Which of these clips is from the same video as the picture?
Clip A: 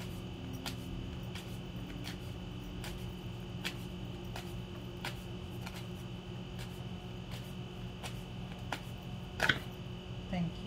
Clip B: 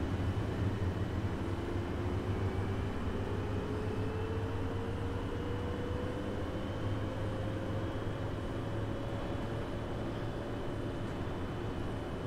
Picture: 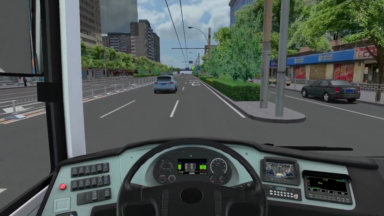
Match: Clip B